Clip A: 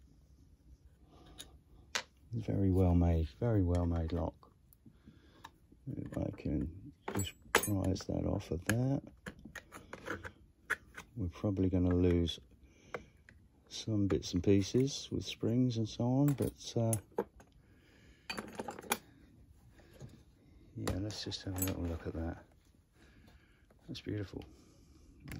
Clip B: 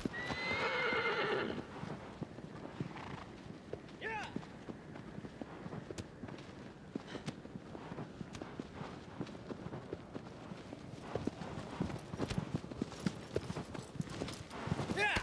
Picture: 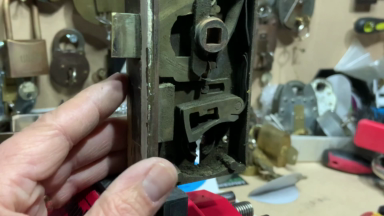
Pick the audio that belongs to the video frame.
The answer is A